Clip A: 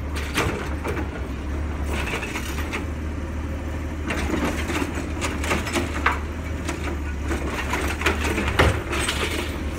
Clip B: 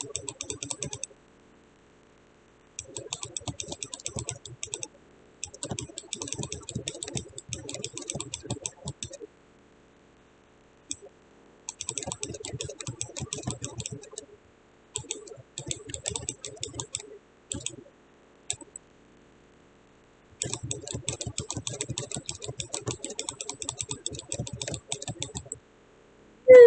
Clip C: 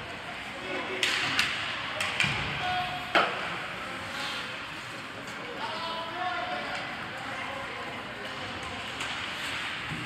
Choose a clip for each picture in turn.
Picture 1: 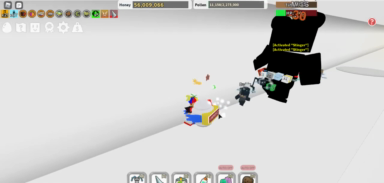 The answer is B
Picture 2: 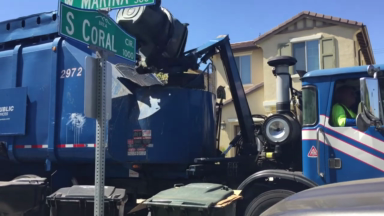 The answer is A